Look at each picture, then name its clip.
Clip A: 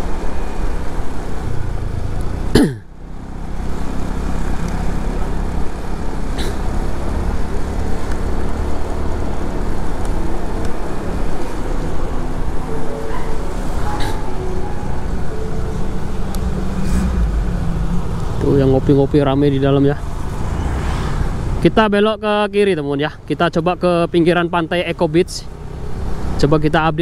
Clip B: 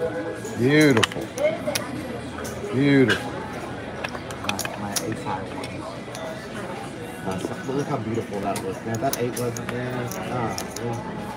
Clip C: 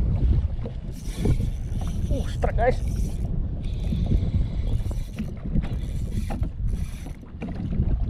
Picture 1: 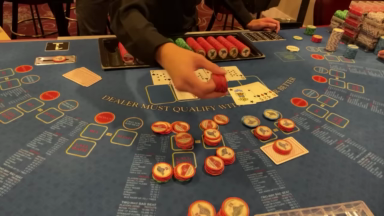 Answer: B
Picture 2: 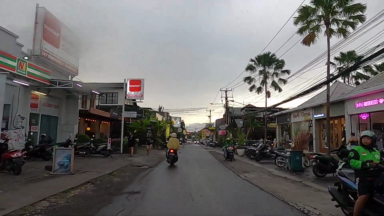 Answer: A